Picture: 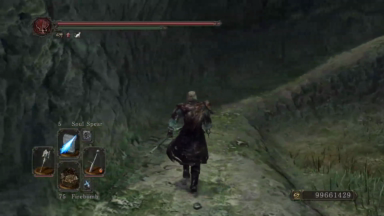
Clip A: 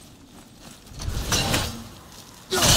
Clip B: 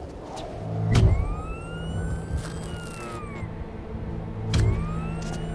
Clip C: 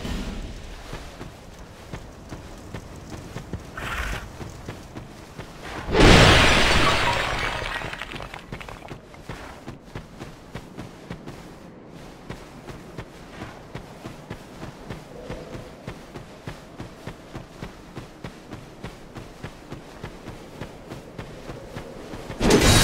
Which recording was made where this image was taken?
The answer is C